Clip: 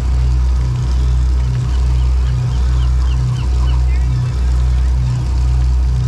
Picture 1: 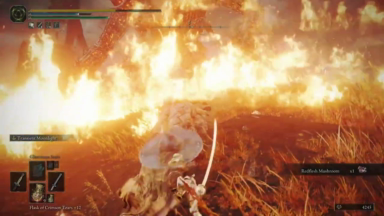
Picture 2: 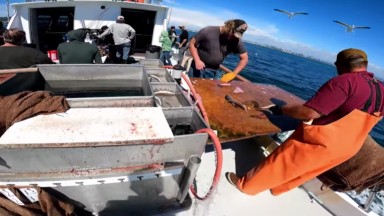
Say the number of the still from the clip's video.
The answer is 2